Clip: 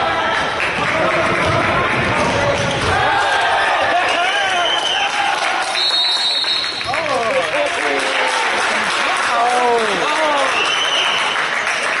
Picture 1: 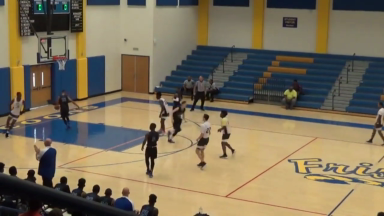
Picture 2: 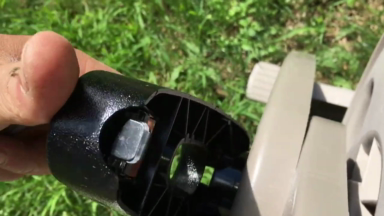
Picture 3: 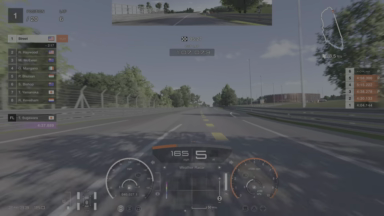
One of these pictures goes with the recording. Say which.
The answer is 1